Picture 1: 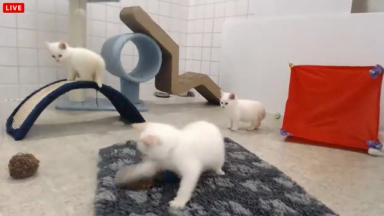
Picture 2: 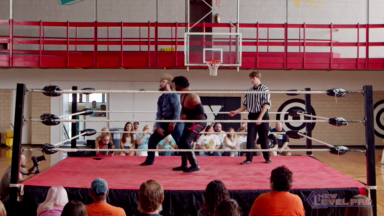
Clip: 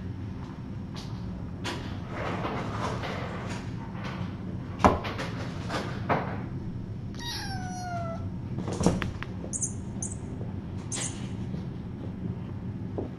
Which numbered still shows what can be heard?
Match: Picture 1